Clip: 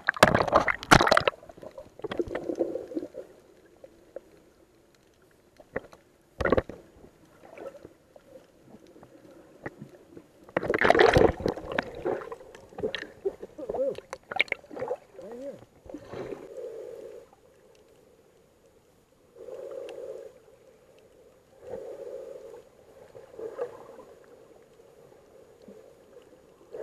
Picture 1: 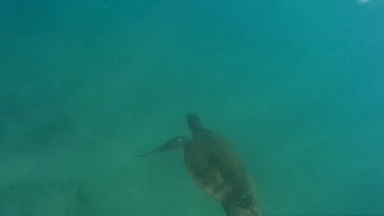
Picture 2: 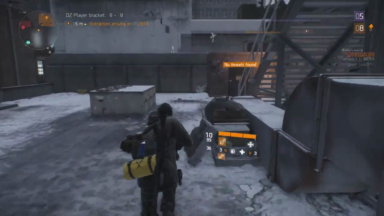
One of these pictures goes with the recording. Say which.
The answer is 1